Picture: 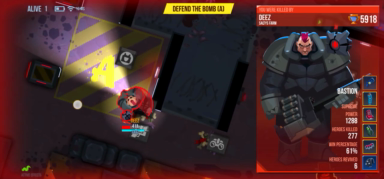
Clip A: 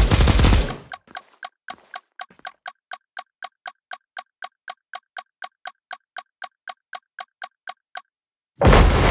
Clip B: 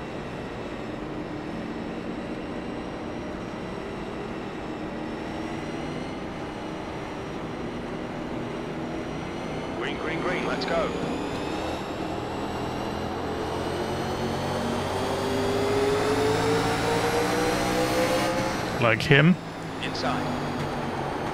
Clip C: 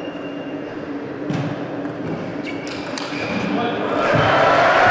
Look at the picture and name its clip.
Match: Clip A